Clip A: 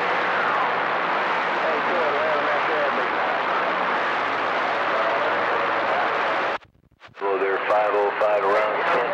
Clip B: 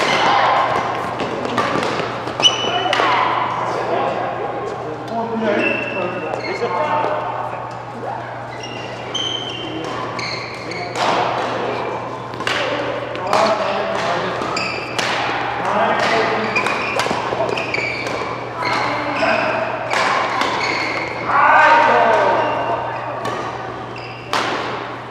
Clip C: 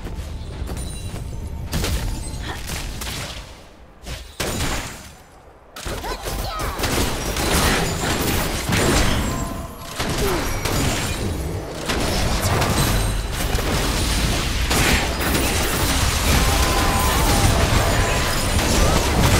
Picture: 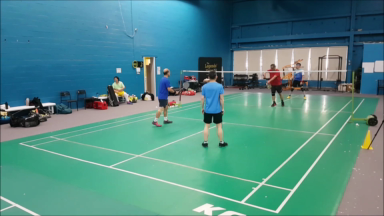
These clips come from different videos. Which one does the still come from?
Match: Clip B